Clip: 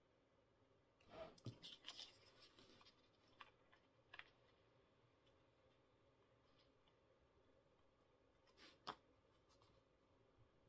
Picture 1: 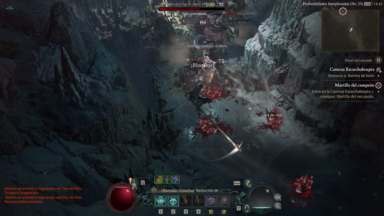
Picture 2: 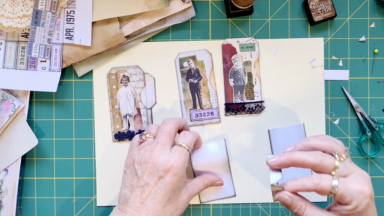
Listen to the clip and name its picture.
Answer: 2